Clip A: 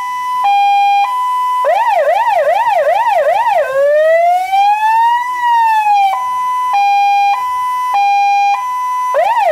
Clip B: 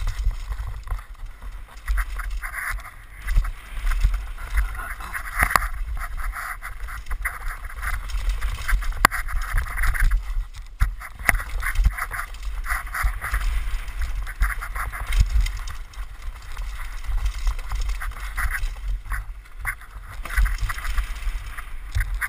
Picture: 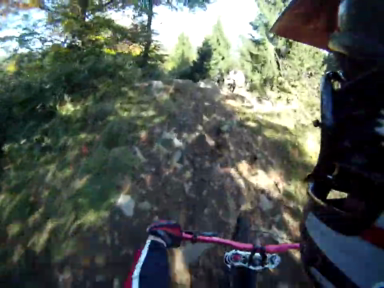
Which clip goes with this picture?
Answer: B